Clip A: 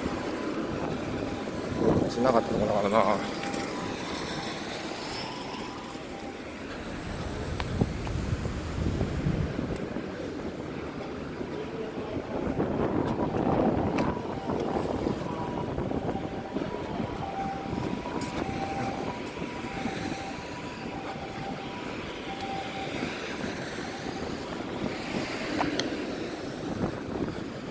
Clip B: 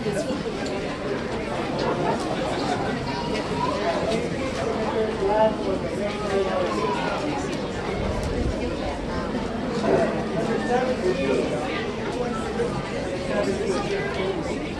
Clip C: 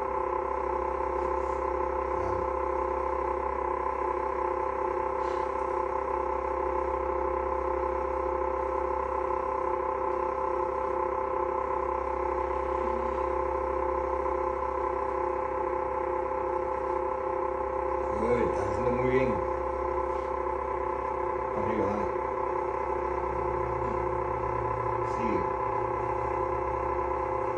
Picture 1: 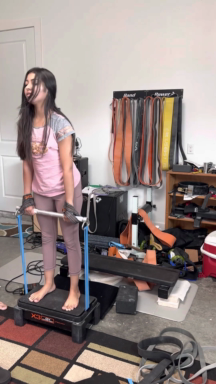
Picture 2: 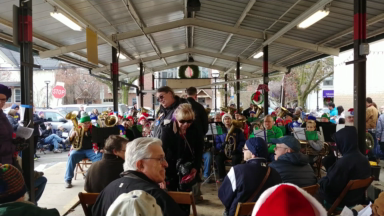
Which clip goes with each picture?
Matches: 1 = C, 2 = B